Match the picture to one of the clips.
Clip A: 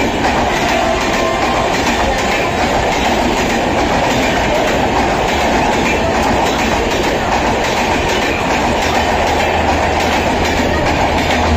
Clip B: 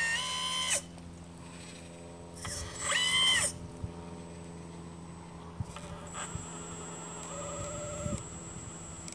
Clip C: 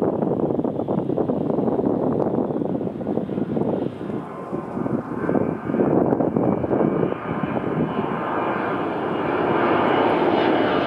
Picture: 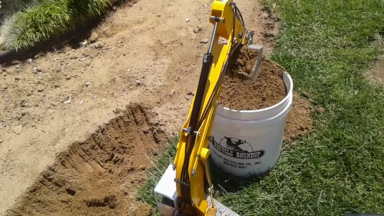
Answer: B